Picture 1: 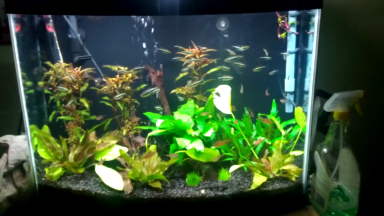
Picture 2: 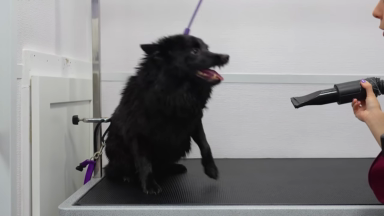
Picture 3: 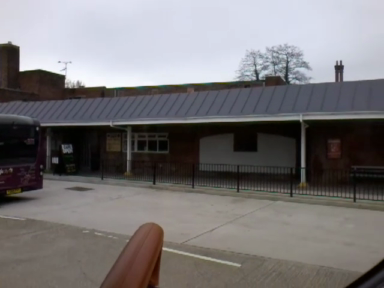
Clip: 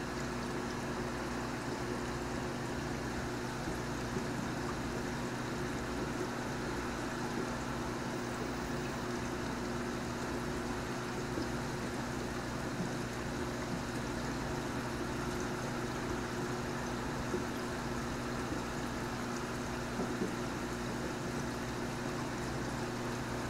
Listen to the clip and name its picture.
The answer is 1